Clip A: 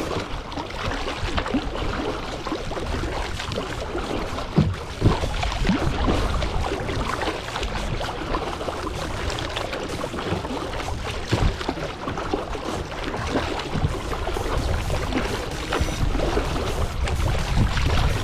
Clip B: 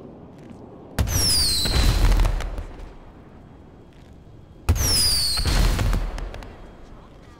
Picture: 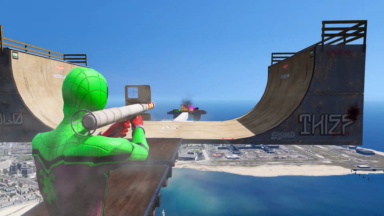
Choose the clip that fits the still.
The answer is B